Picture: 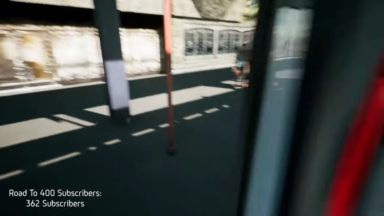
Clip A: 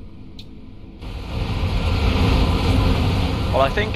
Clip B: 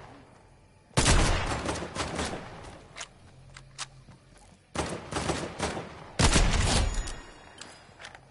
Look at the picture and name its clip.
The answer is A